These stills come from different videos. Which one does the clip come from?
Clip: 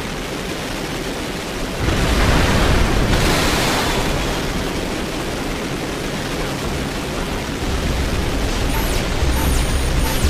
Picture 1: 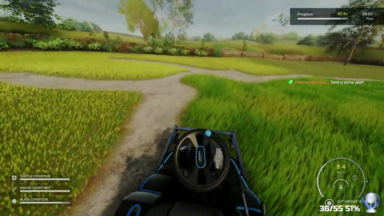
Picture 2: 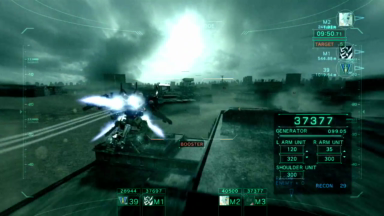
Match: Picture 2